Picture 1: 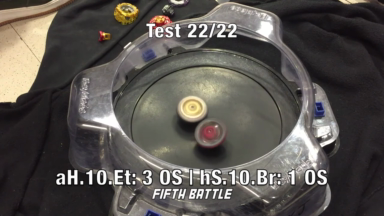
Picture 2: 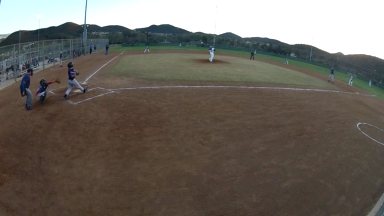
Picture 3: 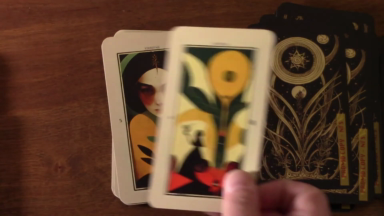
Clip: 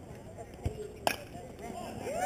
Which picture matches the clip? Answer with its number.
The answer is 2